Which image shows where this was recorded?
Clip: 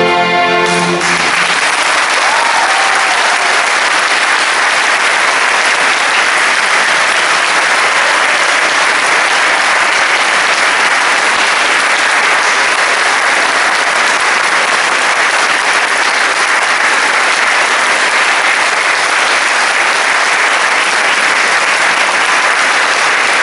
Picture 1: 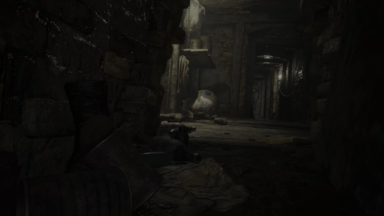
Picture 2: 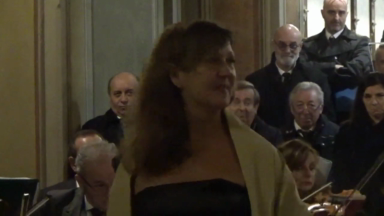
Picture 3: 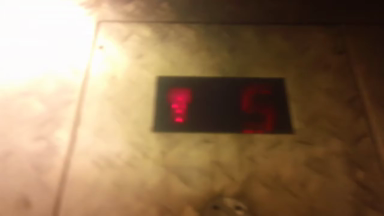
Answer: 2